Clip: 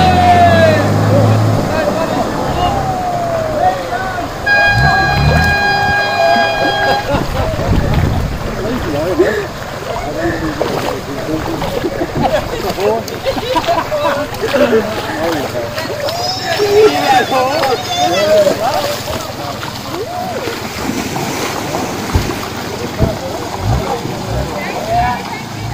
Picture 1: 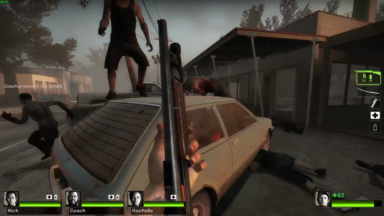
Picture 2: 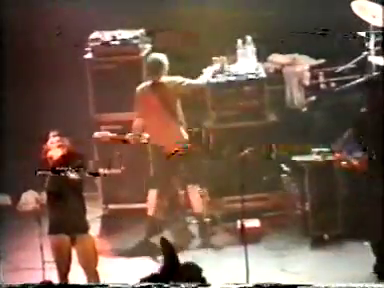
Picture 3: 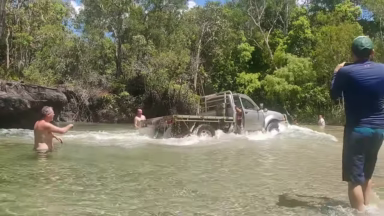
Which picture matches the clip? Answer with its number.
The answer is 3